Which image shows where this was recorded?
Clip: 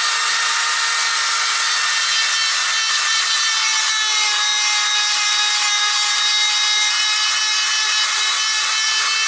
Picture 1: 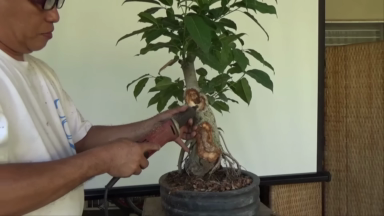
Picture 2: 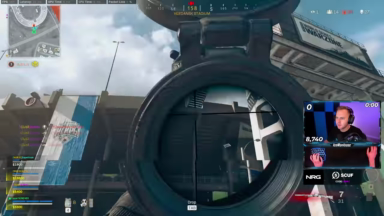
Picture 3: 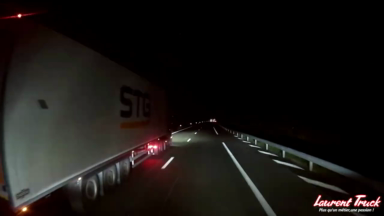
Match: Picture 1